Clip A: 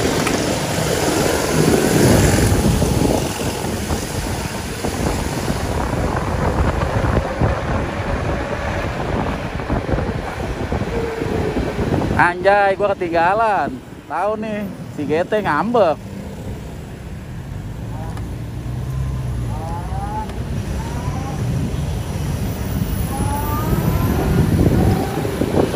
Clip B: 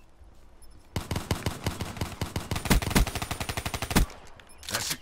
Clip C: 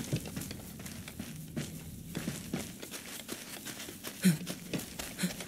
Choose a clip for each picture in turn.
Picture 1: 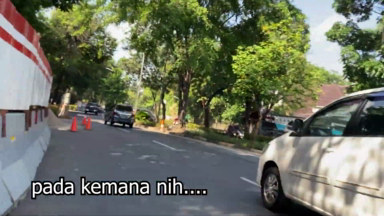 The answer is A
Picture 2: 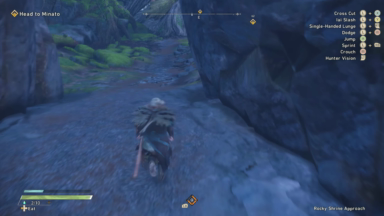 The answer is C